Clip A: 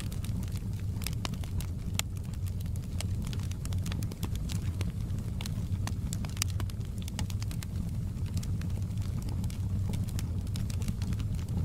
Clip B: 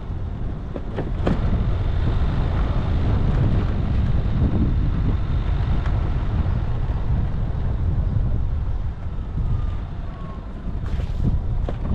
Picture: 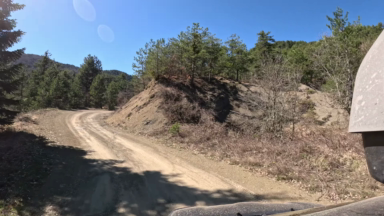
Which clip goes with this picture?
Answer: B